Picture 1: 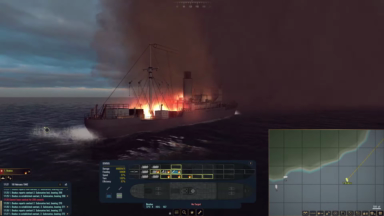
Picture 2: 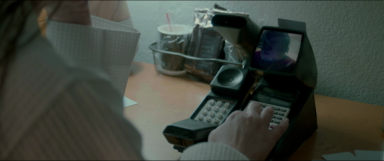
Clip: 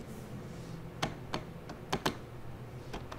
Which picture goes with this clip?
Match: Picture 2